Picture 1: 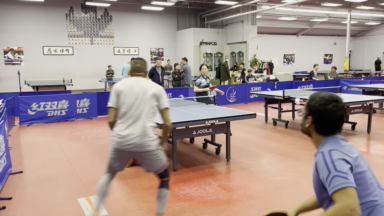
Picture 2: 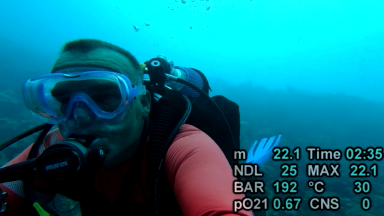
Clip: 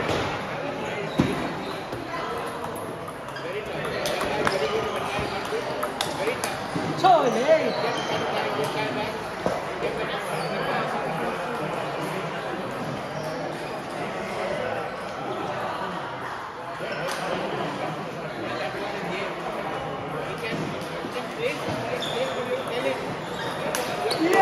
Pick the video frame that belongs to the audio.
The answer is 1